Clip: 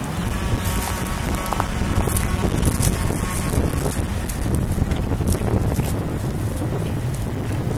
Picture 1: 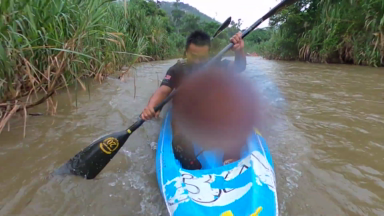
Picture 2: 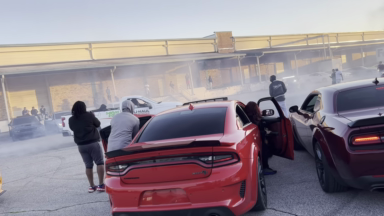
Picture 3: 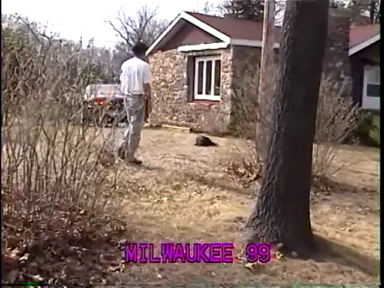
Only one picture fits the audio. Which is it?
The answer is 3